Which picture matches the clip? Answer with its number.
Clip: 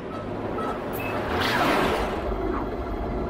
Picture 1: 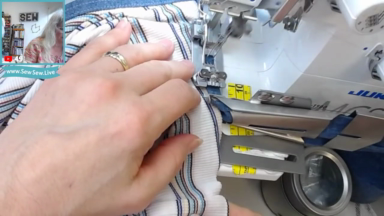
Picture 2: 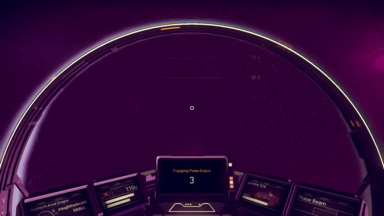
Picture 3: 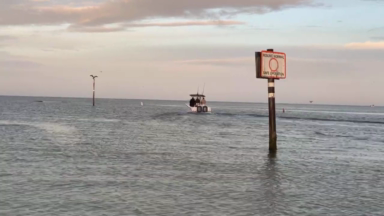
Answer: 2